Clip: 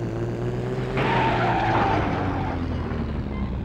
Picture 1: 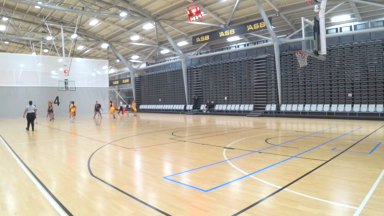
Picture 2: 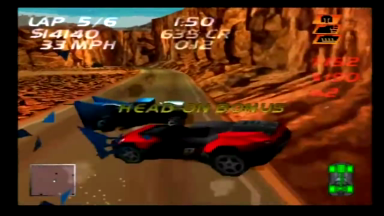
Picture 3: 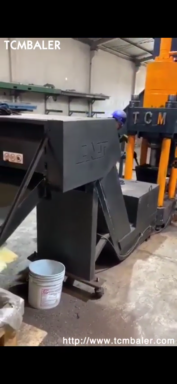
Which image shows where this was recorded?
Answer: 2